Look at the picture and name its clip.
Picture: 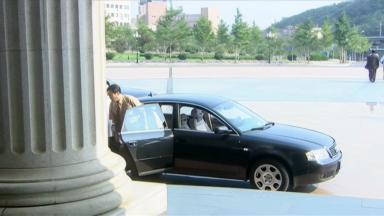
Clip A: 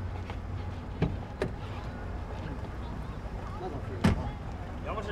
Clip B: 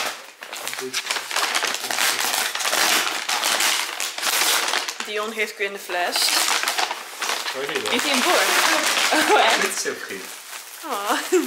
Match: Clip A